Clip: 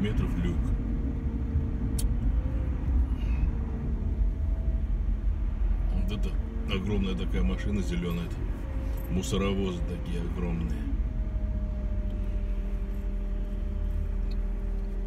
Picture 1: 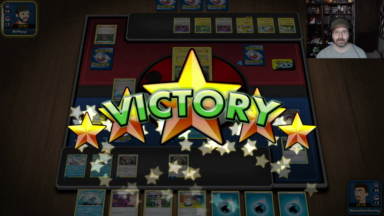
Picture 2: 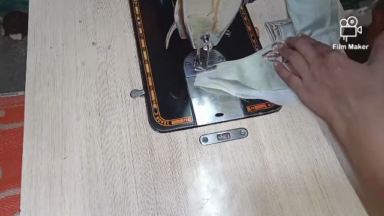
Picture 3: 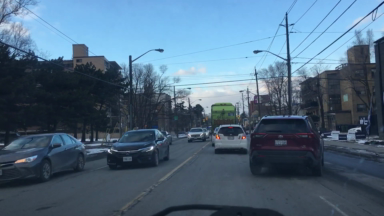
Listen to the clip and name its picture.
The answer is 3